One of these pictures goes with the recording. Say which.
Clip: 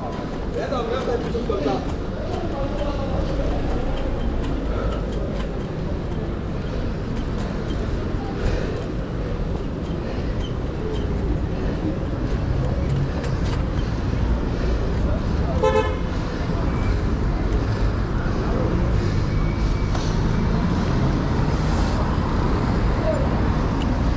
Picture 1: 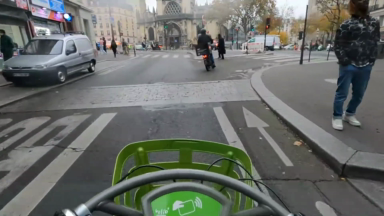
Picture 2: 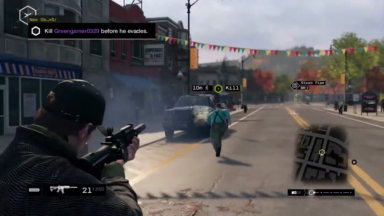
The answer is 1